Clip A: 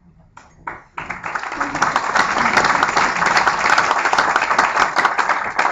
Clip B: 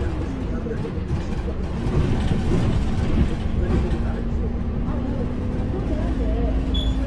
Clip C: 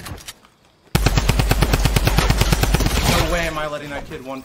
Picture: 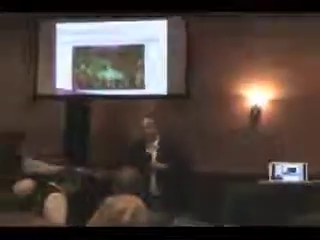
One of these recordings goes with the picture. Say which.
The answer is A